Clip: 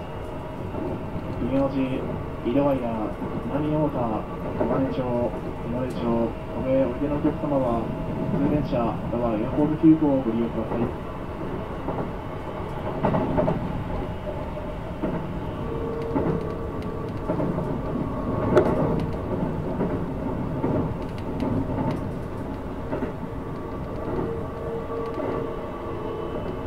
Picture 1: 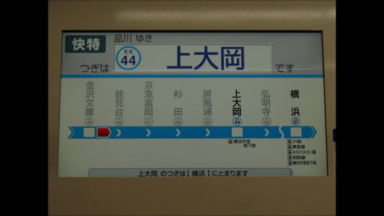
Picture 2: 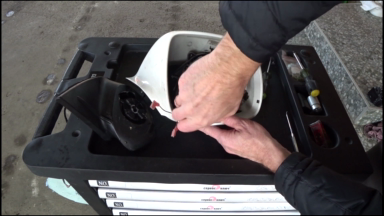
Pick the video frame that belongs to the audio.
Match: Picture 1